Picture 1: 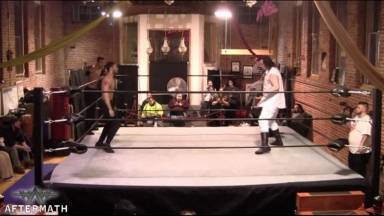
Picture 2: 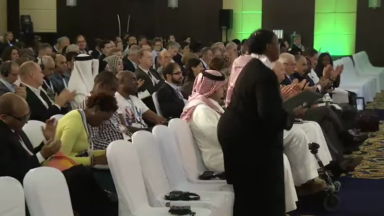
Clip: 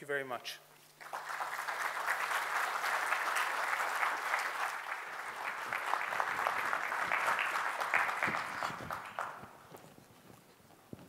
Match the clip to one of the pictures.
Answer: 2